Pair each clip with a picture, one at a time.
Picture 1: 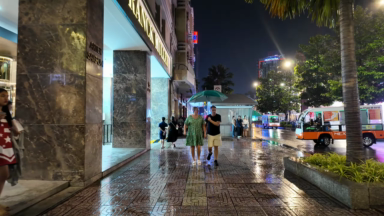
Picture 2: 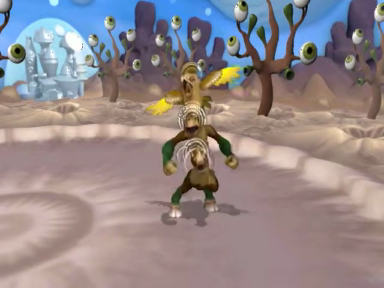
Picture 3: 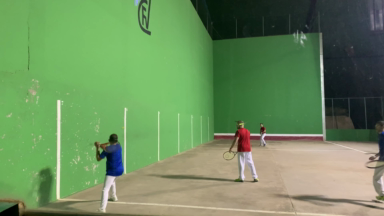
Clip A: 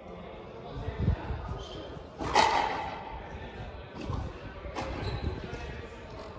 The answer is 3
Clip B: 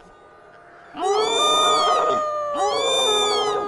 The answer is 2